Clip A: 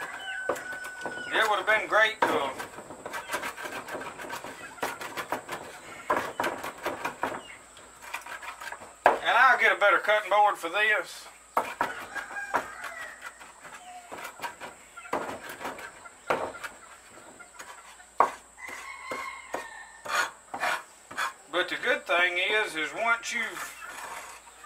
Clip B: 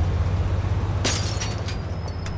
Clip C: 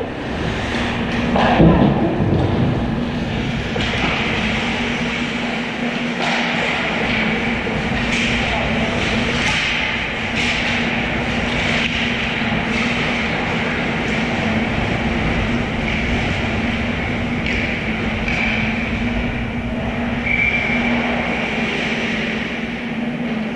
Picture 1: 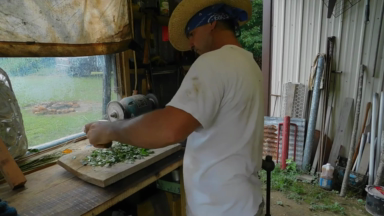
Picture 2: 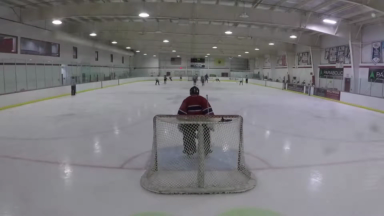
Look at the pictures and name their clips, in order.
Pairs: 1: A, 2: C